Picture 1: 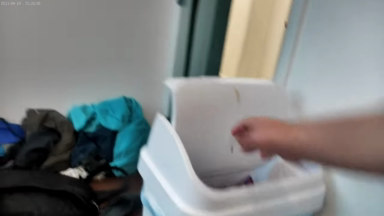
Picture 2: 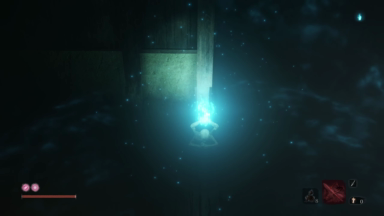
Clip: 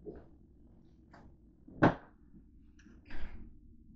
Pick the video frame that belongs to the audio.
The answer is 1